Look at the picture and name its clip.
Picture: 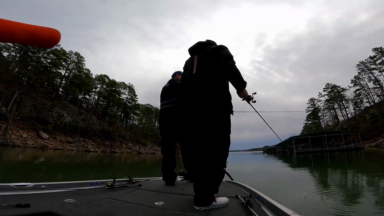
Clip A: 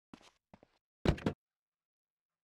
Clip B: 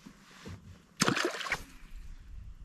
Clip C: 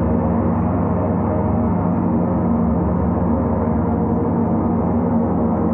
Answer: B